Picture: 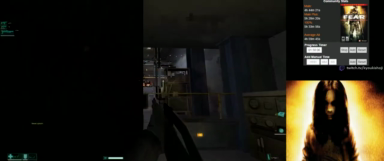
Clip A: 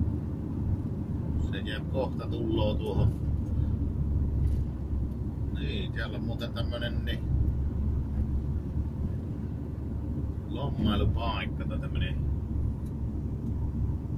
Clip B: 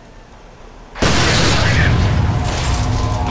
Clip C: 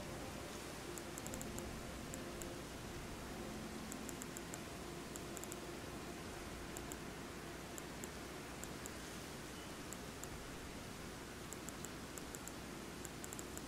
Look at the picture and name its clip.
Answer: B